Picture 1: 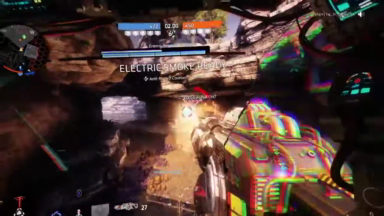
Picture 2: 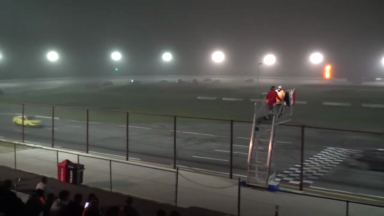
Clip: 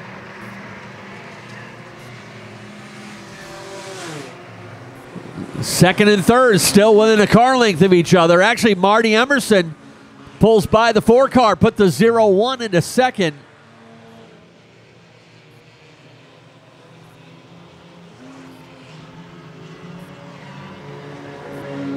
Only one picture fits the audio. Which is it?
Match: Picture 2